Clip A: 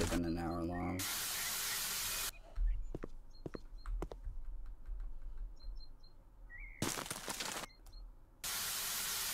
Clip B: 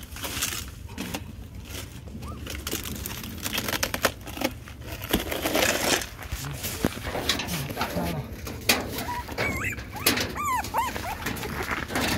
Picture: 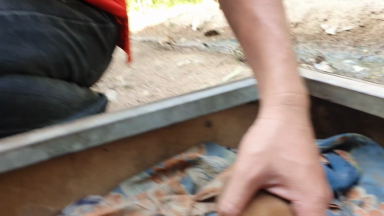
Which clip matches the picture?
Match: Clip B